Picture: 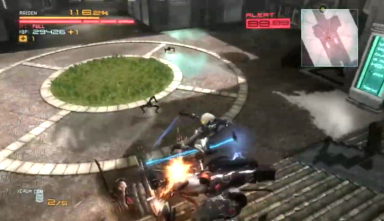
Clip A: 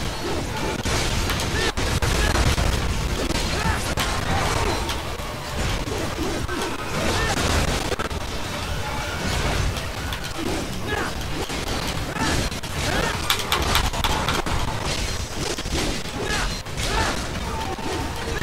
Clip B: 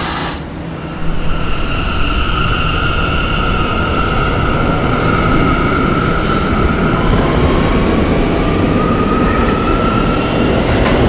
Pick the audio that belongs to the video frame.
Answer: A